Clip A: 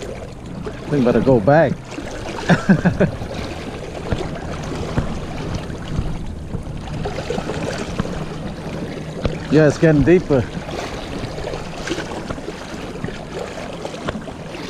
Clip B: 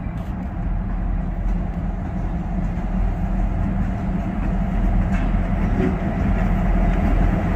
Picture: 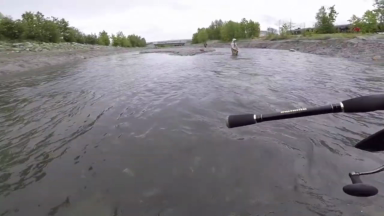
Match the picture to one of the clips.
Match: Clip A